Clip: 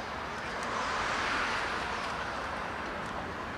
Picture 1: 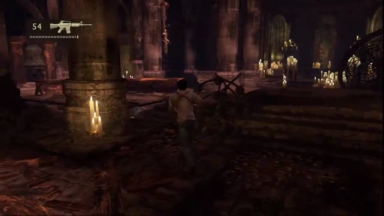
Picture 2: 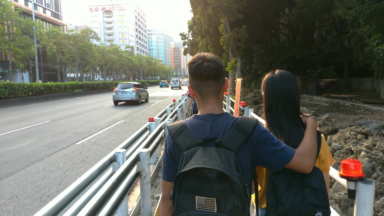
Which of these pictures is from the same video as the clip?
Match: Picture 2